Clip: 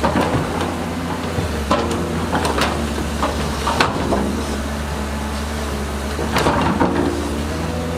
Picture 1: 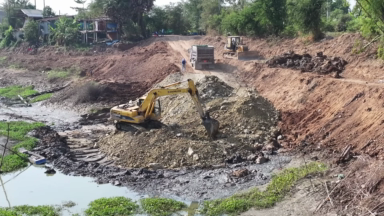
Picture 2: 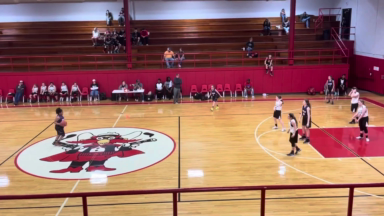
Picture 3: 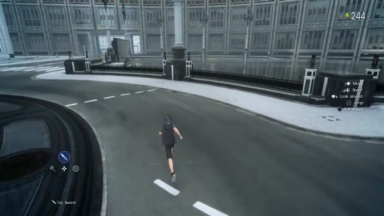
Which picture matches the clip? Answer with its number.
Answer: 1